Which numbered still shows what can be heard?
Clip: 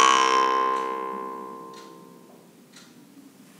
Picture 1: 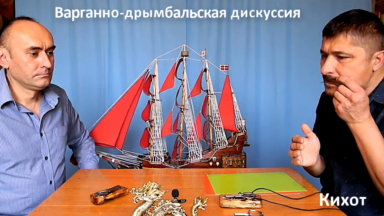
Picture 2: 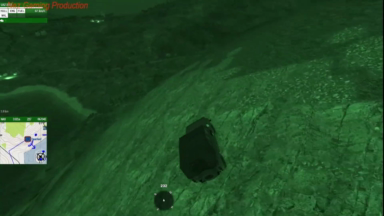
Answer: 1